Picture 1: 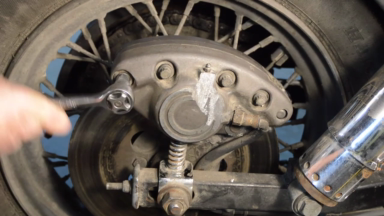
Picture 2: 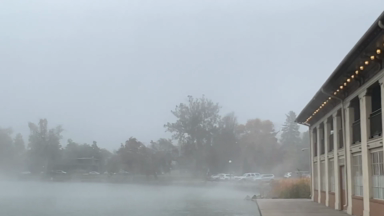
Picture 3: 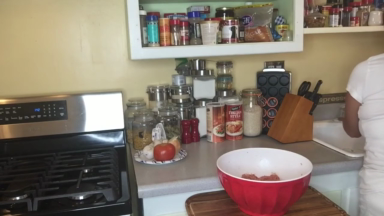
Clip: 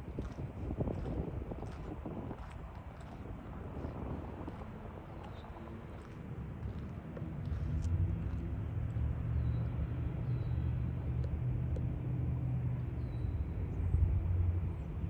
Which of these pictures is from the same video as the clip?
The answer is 2